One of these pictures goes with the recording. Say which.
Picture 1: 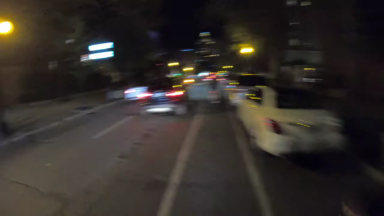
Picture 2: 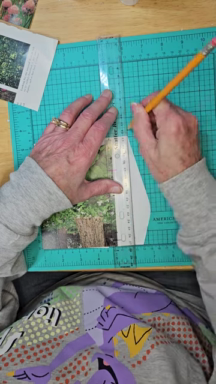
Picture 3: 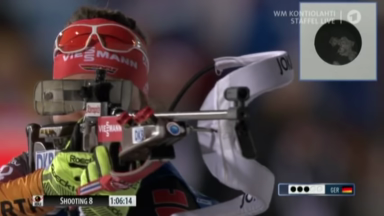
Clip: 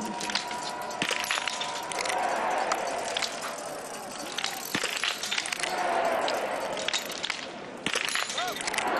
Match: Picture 3